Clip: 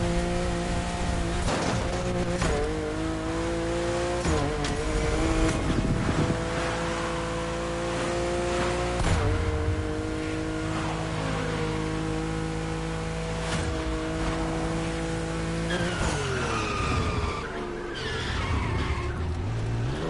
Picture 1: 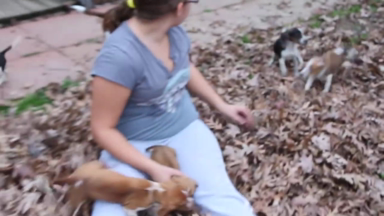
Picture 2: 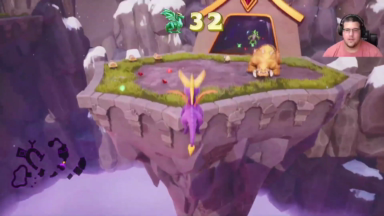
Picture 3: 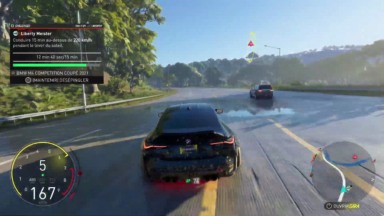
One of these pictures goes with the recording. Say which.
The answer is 3